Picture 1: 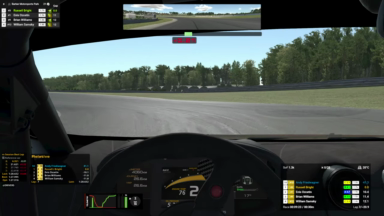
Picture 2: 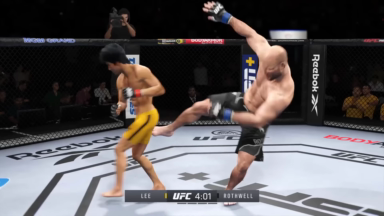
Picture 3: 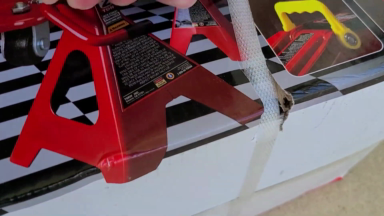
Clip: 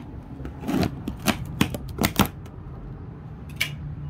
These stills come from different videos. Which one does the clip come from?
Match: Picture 3